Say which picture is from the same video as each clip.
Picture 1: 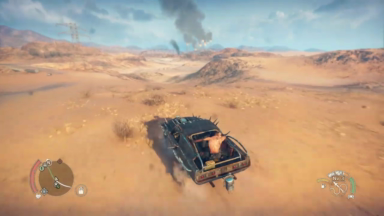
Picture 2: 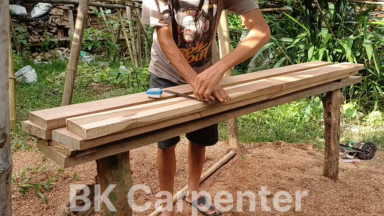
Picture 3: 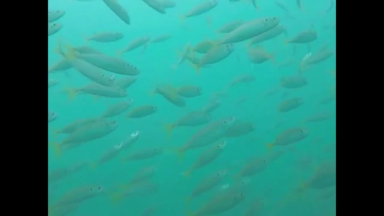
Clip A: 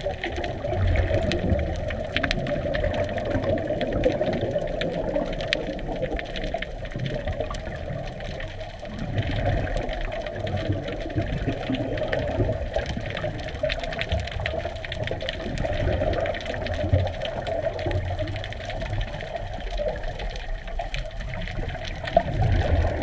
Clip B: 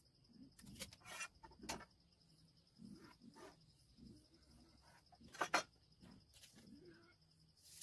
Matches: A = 3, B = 2